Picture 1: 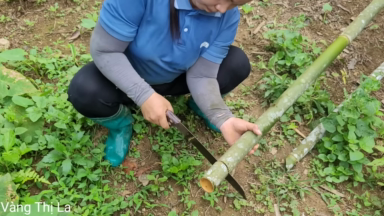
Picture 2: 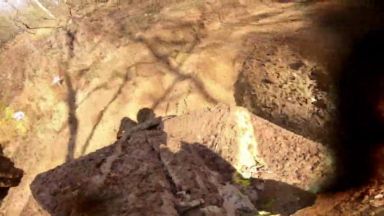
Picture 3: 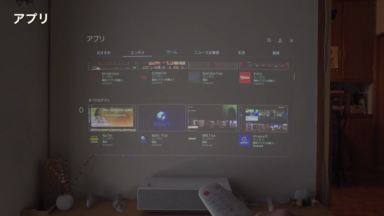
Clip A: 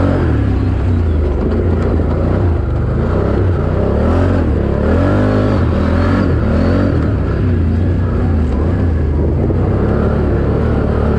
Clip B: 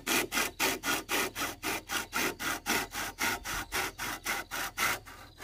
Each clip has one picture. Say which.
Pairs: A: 2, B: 1